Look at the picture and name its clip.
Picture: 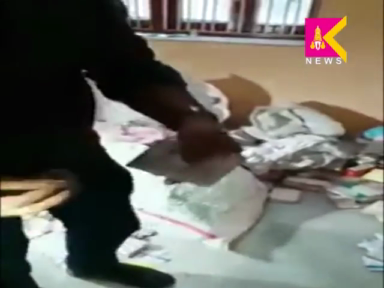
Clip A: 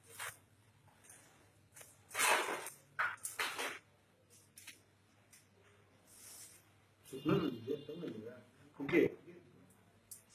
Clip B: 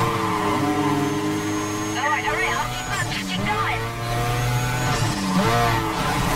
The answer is A